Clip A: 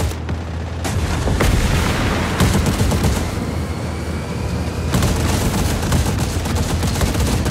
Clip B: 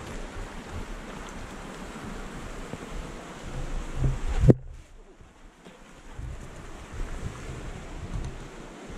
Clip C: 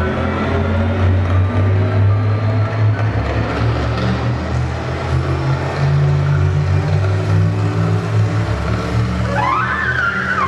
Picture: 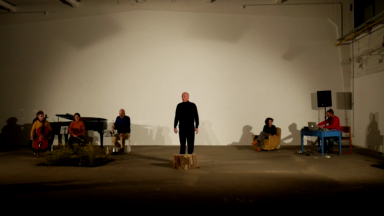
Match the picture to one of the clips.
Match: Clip C